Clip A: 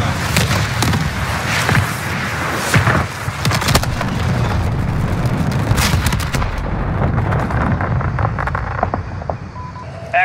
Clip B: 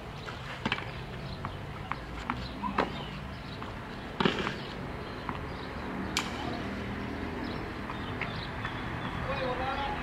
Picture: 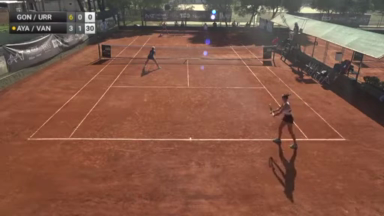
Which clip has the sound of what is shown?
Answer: B